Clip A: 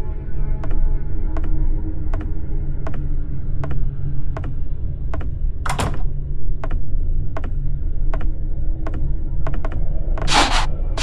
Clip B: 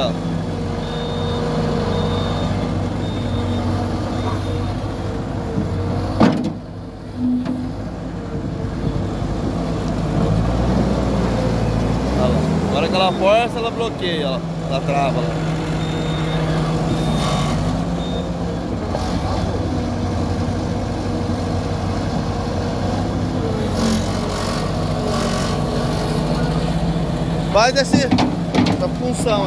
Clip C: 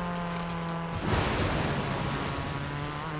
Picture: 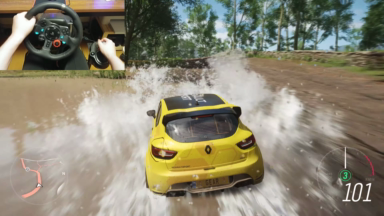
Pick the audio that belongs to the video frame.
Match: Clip C